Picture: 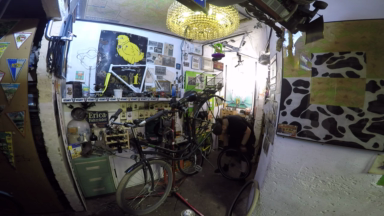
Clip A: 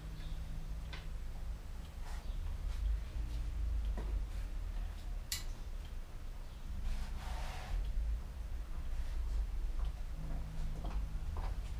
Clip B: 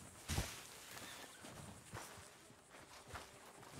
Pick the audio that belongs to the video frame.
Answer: A